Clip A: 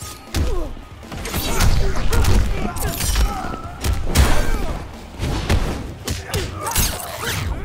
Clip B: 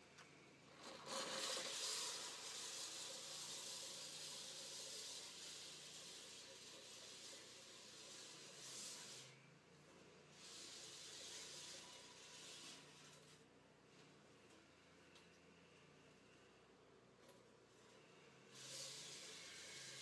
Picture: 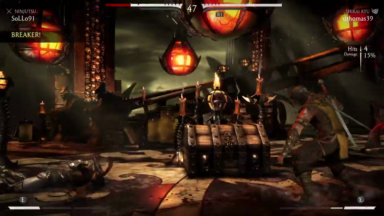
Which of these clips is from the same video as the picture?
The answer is A